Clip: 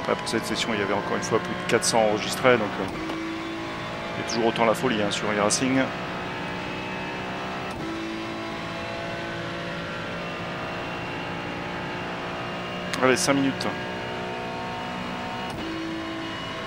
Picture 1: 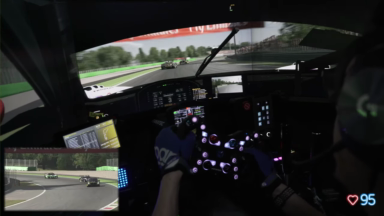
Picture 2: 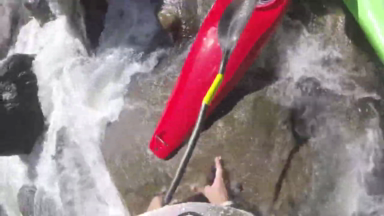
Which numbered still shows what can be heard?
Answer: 1